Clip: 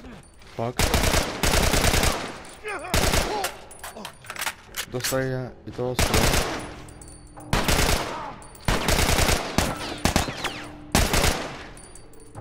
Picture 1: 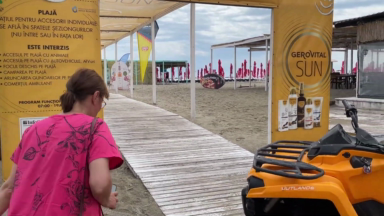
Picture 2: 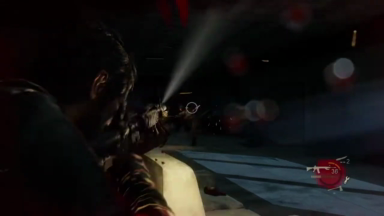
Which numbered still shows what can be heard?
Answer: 2